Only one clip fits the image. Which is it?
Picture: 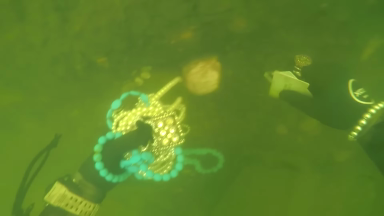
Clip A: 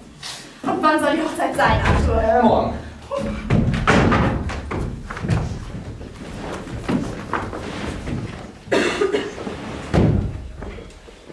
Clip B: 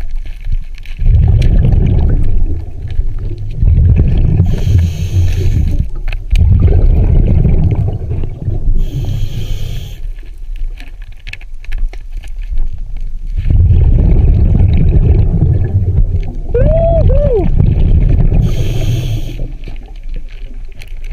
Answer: B